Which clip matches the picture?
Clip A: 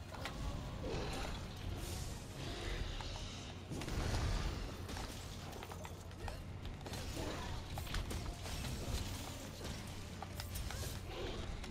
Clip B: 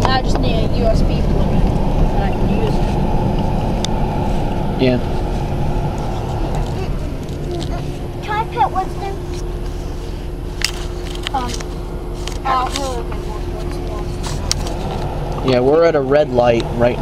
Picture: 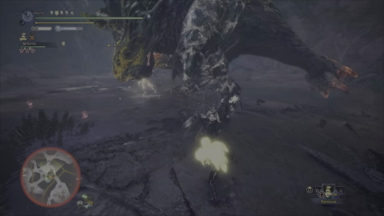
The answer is A